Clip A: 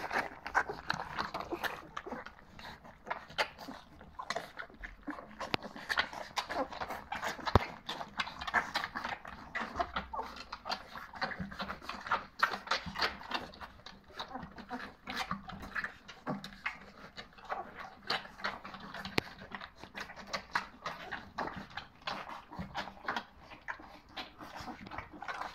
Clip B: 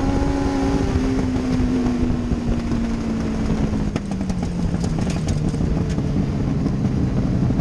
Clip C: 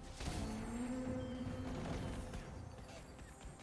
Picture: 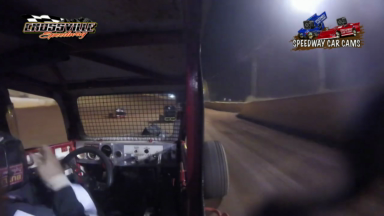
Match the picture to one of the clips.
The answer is B